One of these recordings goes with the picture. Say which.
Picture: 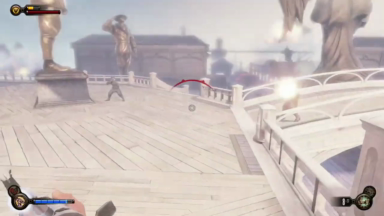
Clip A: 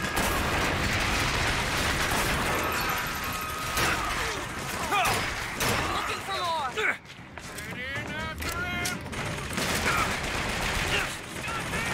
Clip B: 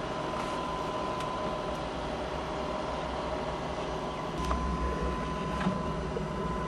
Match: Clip A